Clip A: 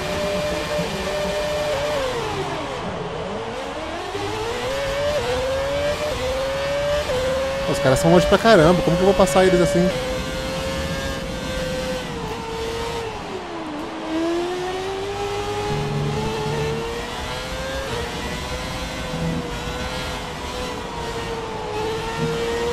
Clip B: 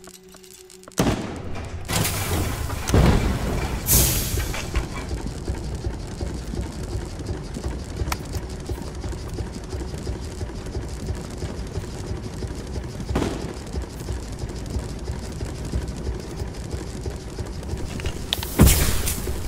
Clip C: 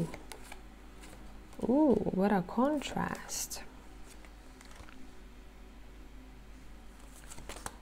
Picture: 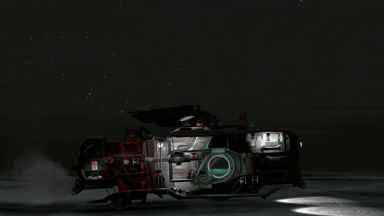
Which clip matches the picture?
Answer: B